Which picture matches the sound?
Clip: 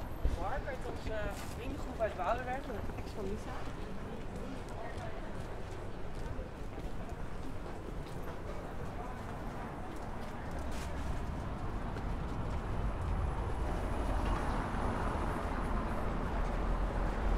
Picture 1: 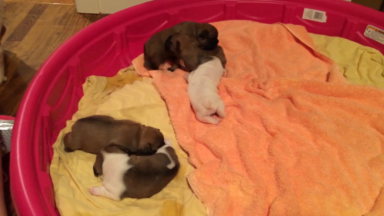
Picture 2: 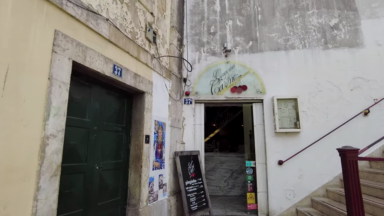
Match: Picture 2